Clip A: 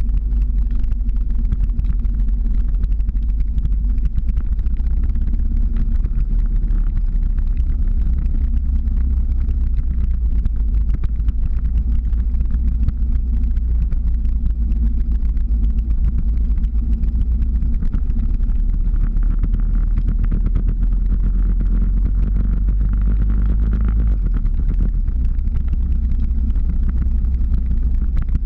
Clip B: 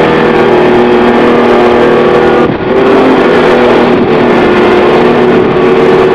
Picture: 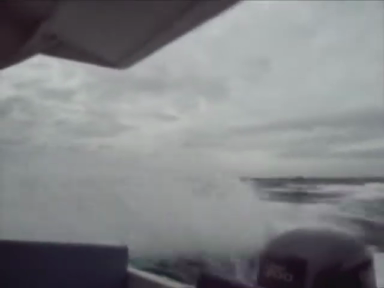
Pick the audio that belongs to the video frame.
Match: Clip B